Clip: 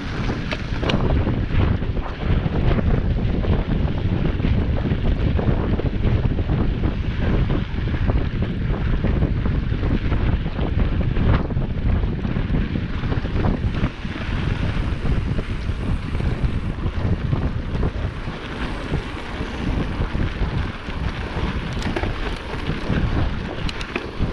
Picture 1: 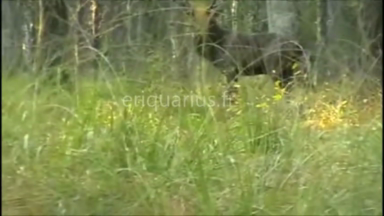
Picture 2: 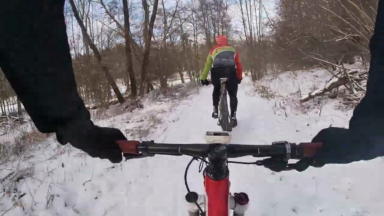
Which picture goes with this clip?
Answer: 2